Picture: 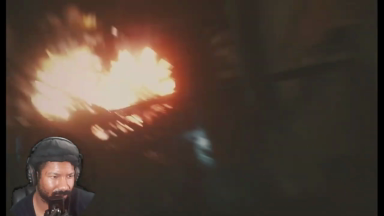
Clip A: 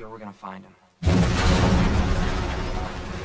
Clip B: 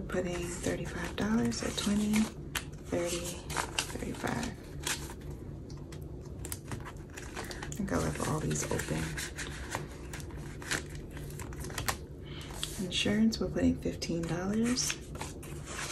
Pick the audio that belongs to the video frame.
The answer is A